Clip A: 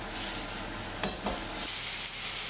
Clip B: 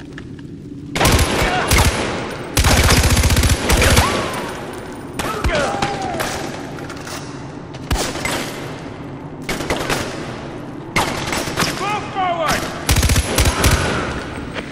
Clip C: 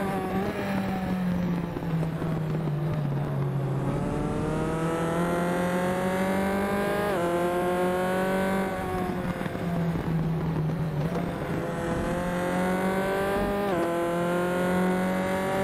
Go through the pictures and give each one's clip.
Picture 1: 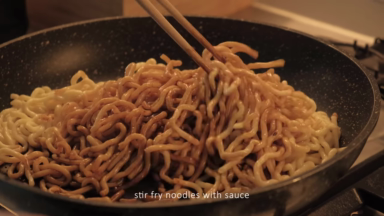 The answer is A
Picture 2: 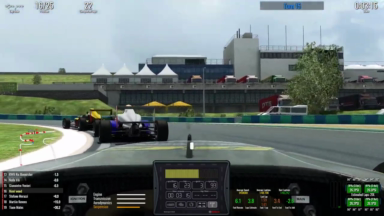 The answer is C